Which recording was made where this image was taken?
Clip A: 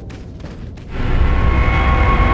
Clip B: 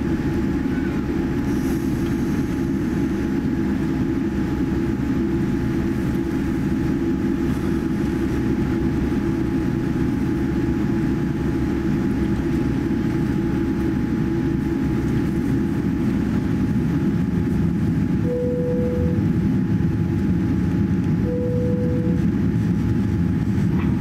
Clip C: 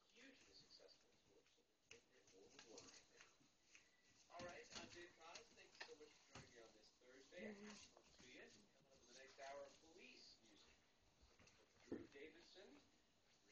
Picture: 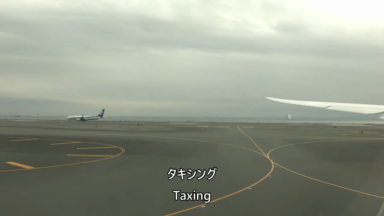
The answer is B